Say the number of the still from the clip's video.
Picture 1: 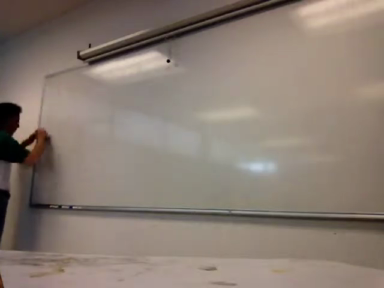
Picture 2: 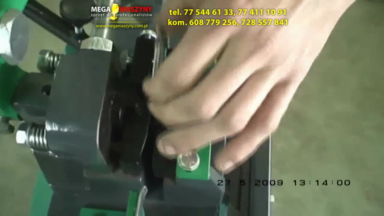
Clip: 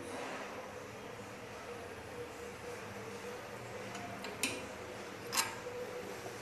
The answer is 2